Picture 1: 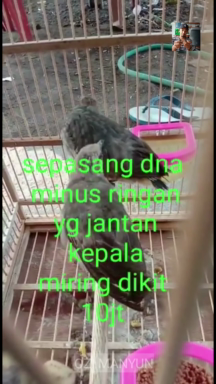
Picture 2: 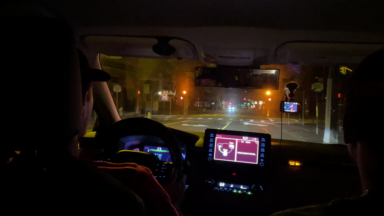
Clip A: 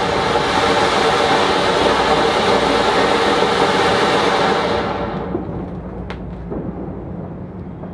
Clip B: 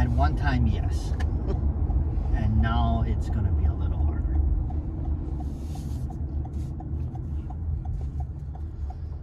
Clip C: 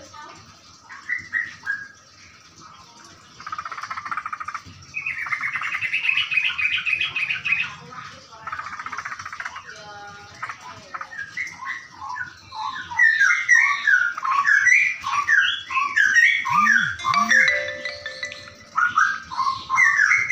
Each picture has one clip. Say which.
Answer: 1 C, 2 B